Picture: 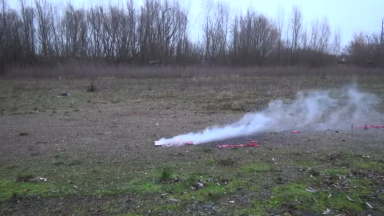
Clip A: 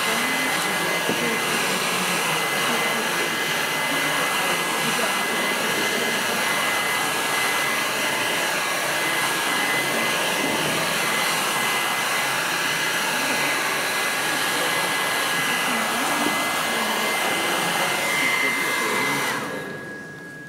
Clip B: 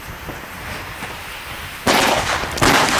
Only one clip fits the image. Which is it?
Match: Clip B